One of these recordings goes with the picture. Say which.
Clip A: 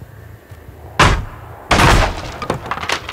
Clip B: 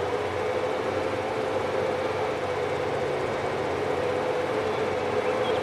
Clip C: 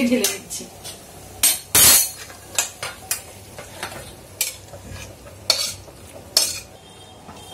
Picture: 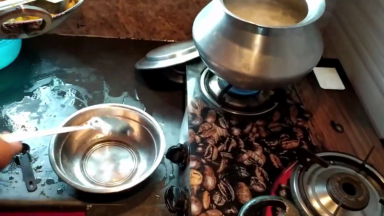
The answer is C